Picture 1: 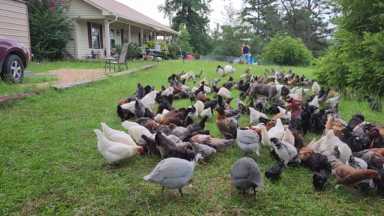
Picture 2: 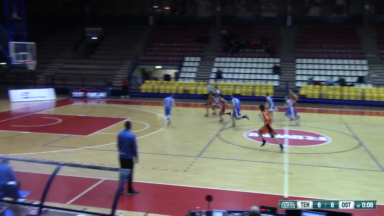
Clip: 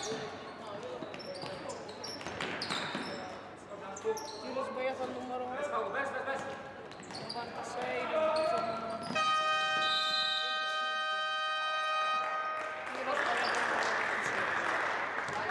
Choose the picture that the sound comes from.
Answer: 2